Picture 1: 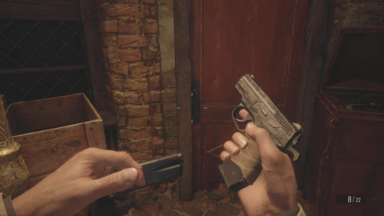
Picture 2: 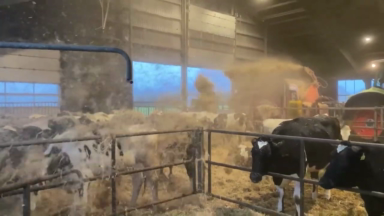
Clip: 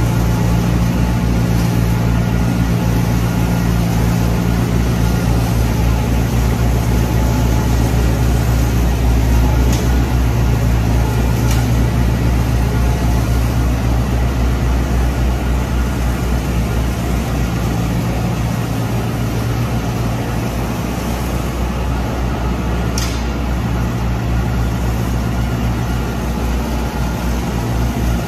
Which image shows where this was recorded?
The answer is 2